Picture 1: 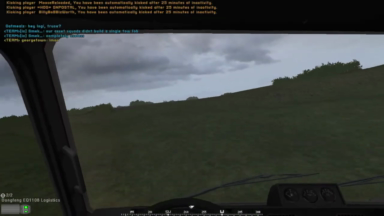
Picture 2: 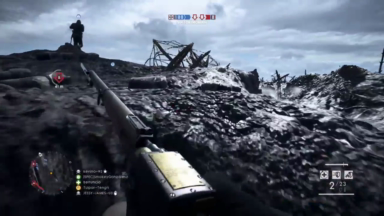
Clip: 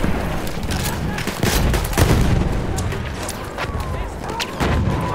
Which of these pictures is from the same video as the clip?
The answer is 2